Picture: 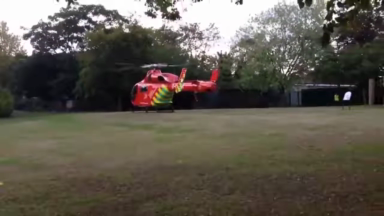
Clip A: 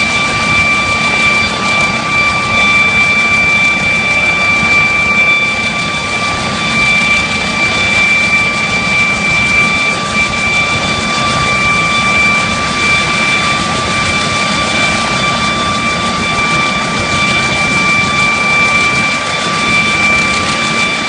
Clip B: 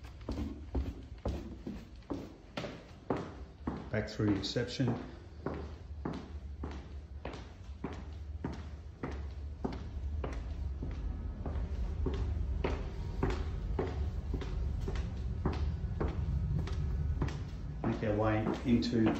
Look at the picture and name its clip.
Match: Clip A